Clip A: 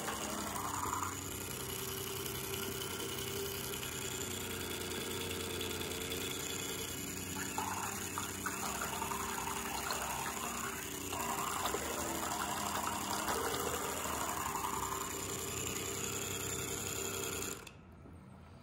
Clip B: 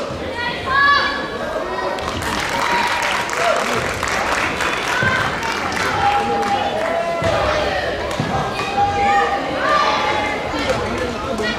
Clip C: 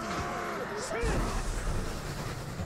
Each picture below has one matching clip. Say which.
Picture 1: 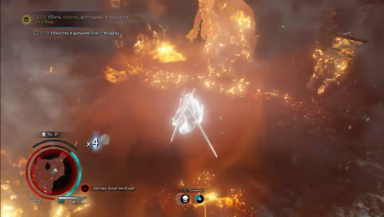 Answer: C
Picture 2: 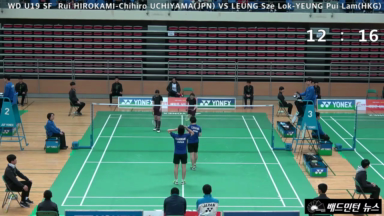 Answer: B